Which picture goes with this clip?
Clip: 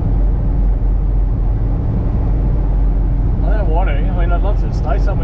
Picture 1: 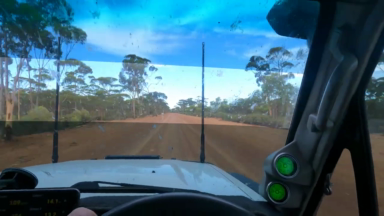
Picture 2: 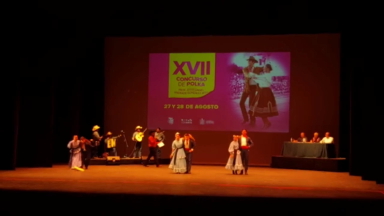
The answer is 1